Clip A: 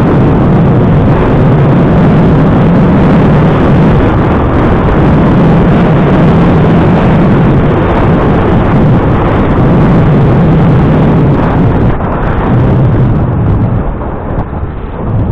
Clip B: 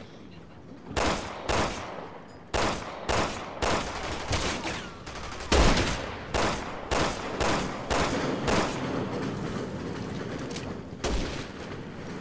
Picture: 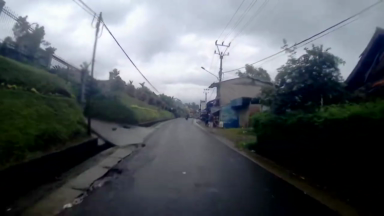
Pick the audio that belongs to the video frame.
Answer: A